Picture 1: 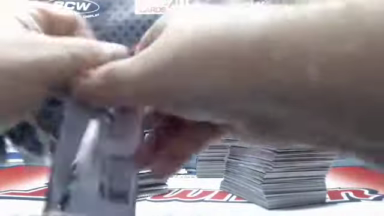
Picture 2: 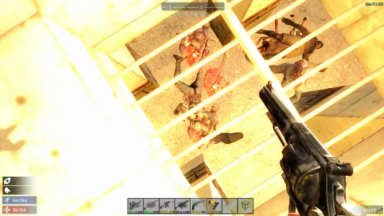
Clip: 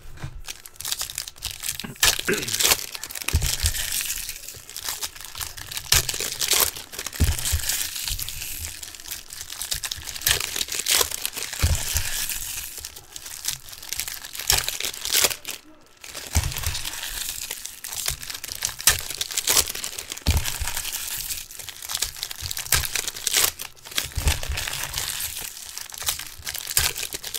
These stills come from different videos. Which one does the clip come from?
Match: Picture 1